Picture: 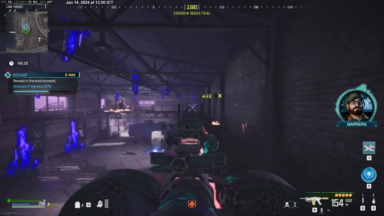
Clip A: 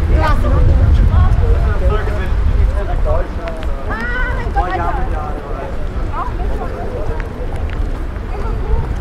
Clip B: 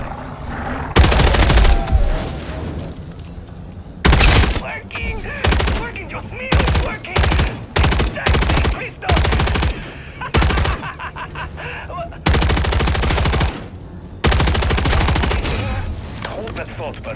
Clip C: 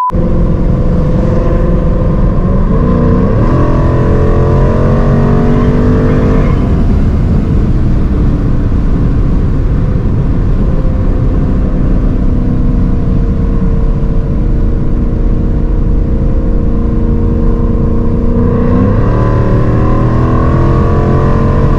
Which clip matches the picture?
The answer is B